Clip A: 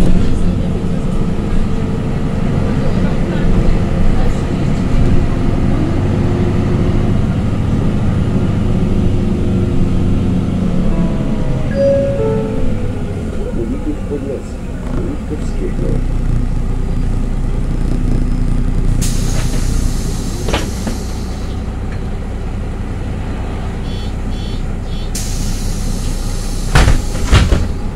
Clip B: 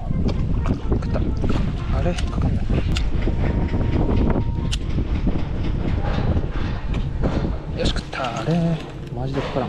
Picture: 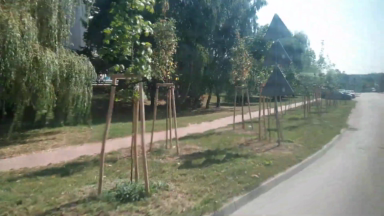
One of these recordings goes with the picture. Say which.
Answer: A